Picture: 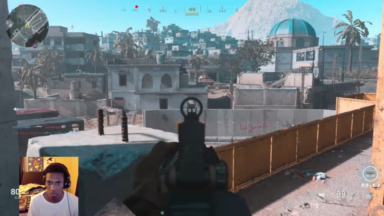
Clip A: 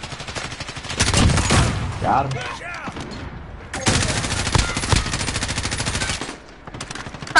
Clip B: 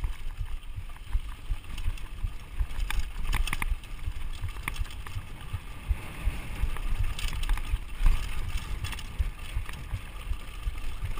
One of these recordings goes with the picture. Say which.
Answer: A